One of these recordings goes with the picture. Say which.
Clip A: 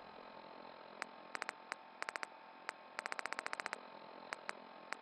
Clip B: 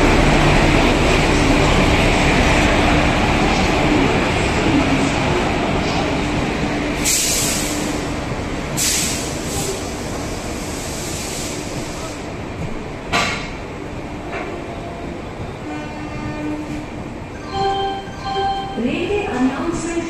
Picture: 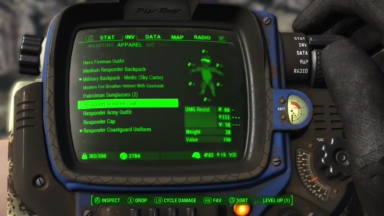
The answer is A